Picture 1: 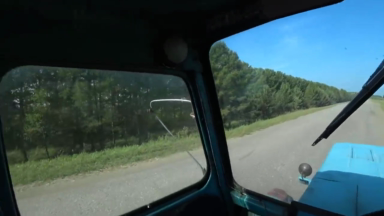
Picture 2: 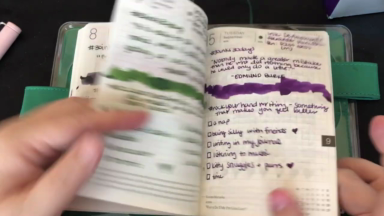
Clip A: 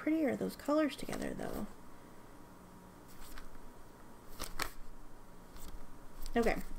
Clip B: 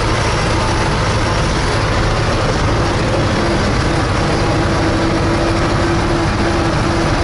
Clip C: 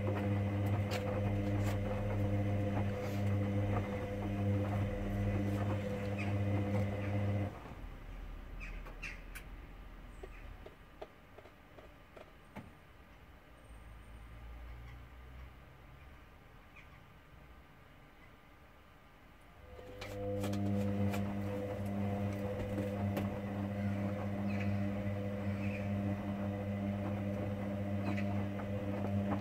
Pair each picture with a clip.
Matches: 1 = B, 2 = A